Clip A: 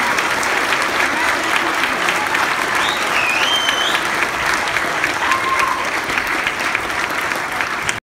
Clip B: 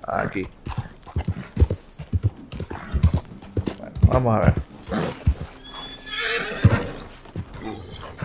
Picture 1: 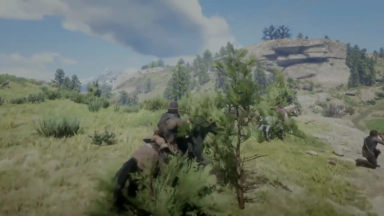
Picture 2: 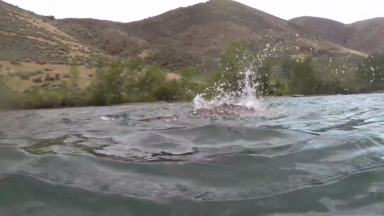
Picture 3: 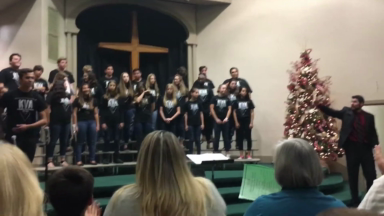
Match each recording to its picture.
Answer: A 3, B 1